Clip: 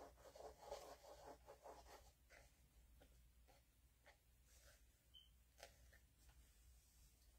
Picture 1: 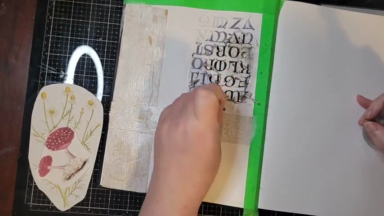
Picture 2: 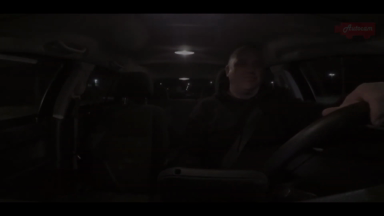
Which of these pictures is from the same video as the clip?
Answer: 1